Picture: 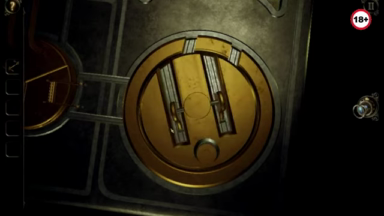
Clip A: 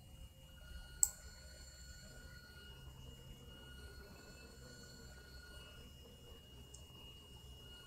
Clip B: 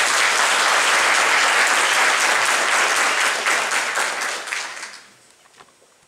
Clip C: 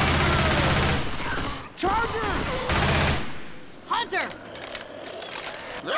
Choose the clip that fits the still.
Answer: A